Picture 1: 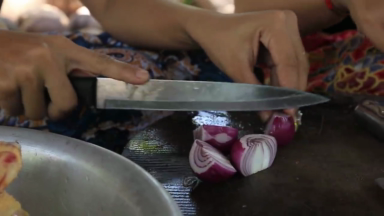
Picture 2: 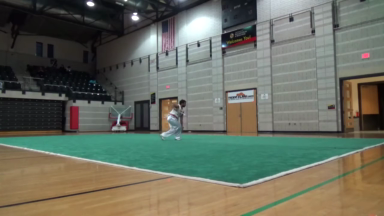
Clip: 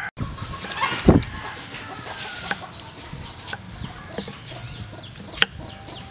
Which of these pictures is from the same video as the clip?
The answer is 1